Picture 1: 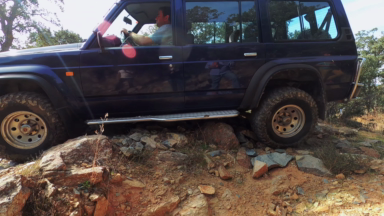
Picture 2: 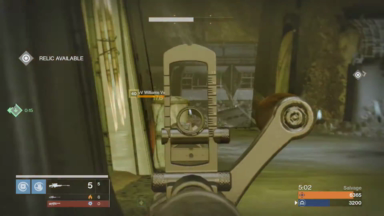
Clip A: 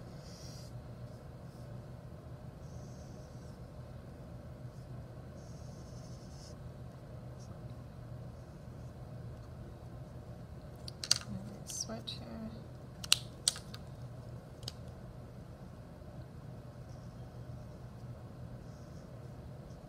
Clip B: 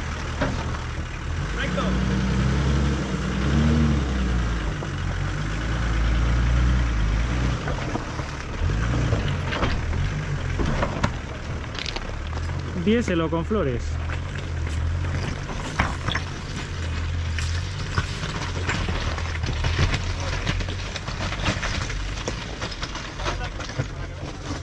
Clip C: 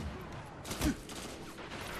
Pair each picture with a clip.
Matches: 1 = B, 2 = C